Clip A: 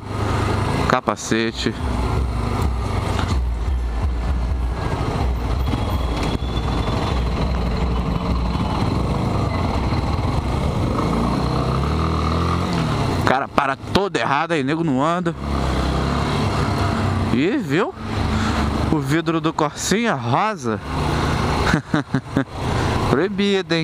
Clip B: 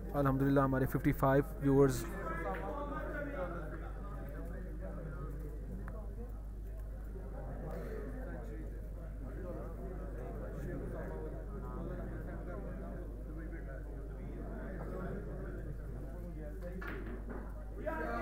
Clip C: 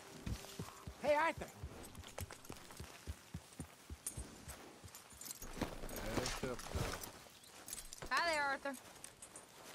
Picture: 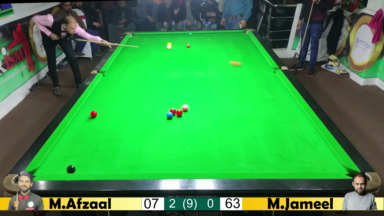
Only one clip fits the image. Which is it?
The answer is B